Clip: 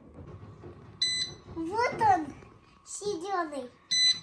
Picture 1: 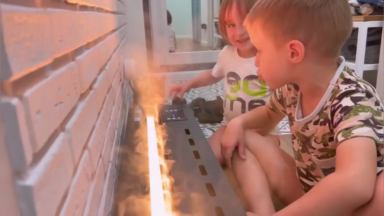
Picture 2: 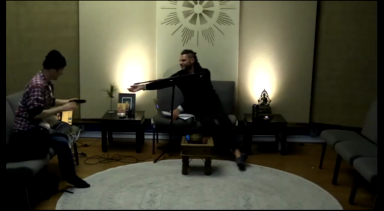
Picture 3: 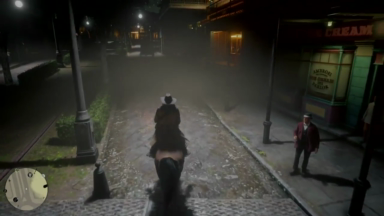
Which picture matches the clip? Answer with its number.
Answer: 1